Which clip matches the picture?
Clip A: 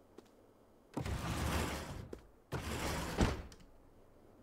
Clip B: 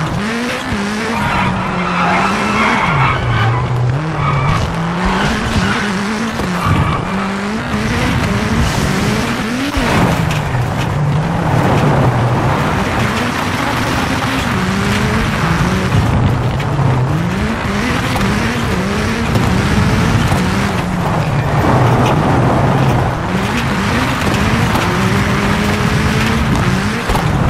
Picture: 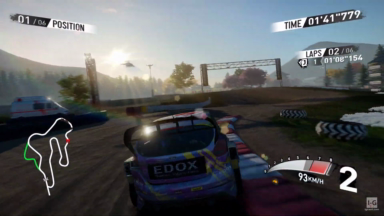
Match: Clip B